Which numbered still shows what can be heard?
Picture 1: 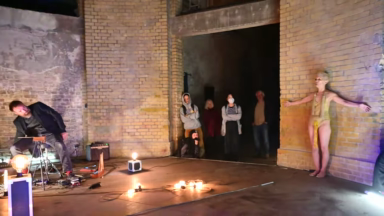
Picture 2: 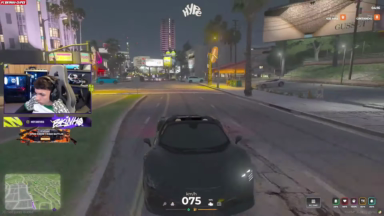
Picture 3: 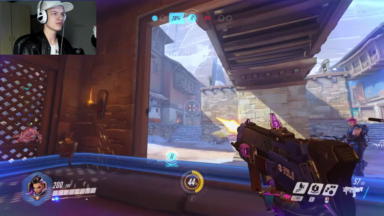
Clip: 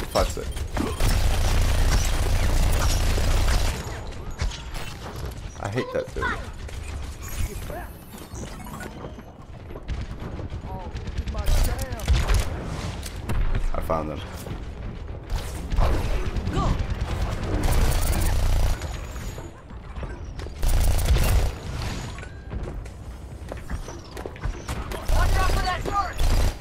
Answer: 3